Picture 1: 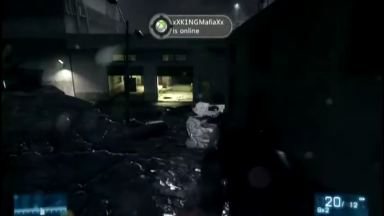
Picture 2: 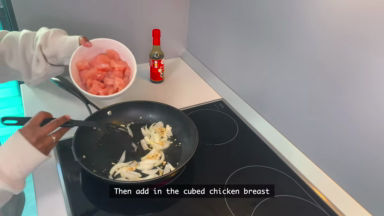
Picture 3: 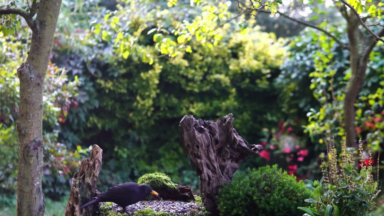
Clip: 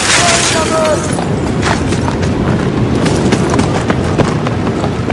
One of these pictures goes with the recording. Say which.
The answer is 1